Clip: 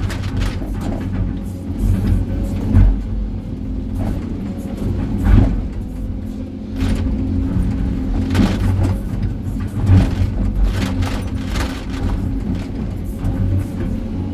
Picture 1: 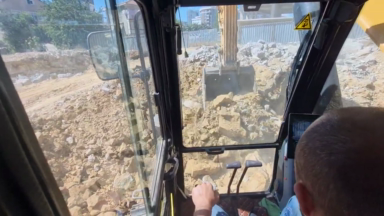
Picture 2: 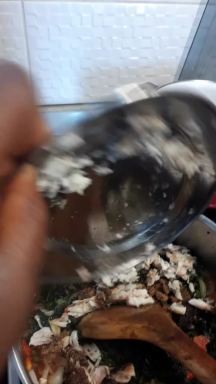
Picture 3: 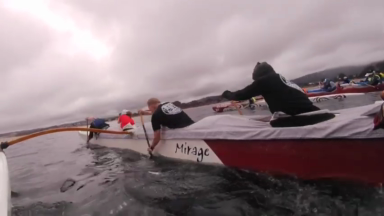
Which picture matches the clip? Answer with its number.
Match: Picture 1